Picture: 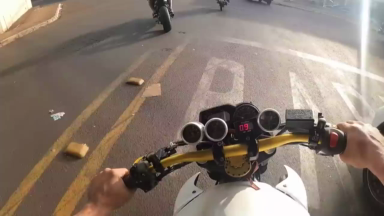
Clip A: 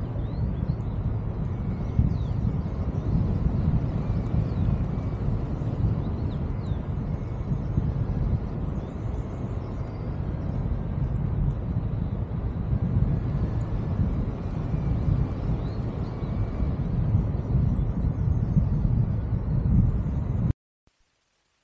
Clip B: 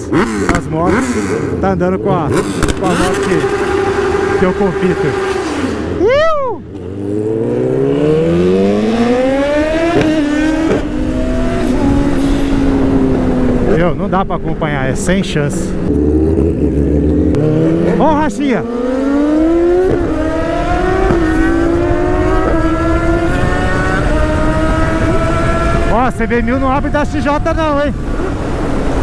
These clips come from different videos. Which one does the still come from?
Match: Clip B